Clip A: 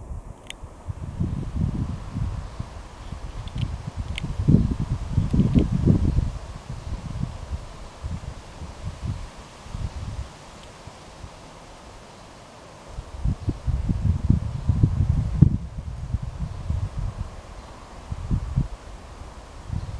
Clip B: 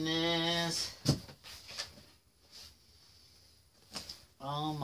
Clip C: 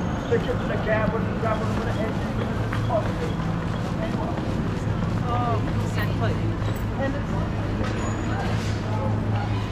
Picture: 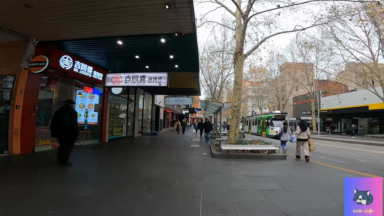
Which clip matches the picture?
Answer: C